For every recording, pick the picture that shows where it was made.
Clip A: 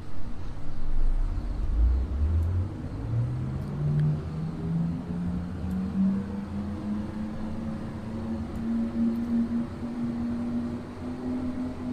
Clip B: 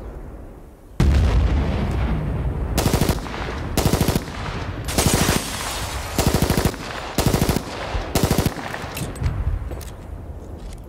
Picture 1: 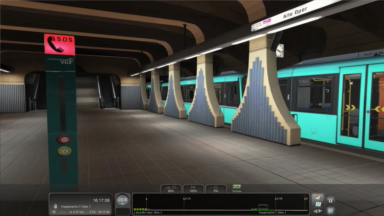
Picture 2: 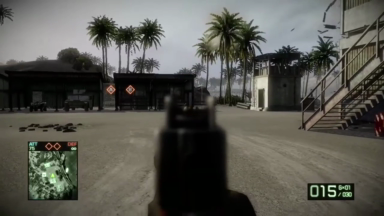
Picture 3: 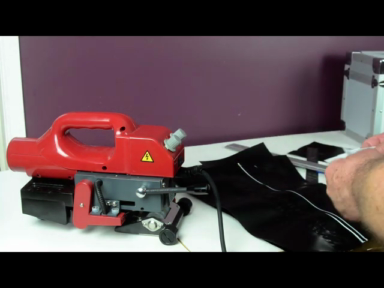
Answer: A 1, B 2